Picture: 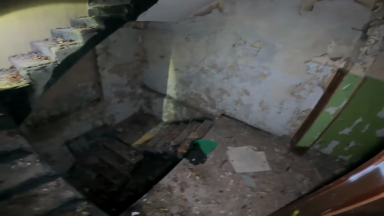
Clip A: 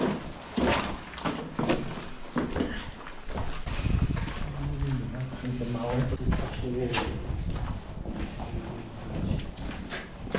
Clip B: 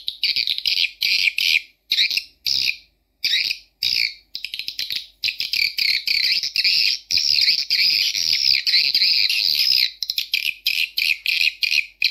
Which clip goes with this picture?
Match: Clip A